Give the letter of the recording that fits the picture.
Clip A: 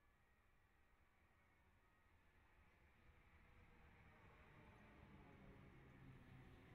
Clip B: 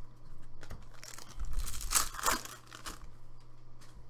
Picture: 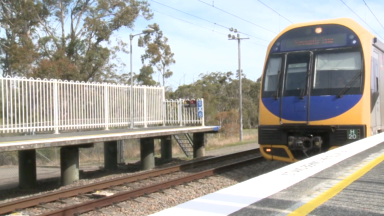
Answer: A